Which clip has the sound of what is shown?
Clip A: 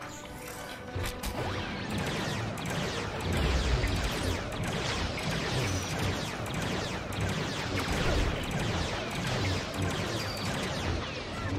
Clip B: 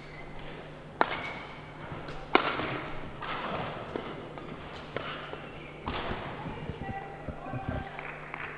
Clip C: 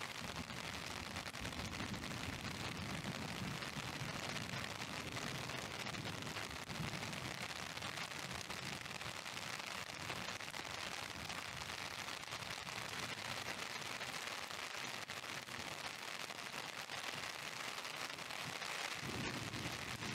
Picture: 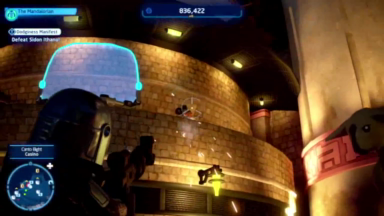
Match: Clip A